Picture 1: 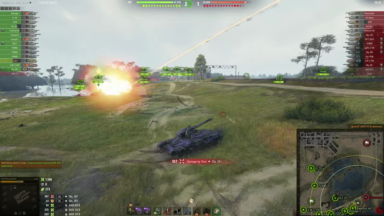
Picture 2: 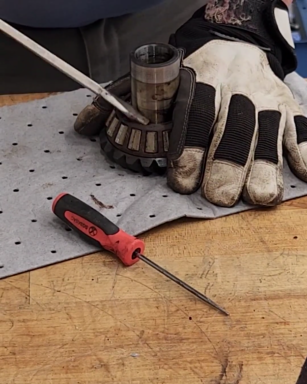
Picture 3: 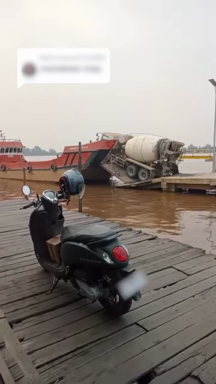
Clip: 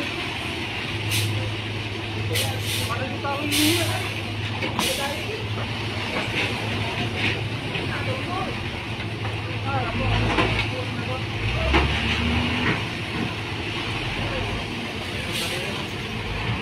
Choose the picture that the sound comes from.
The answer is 3